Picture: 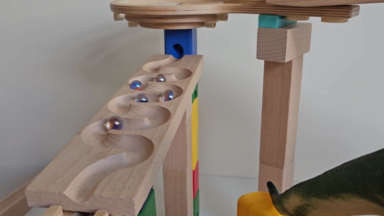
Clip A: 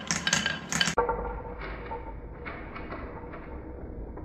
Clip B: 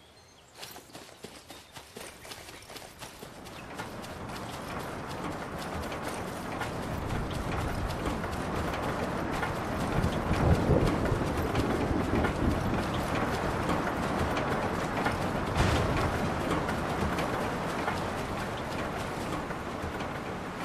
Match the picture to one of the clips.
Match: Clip A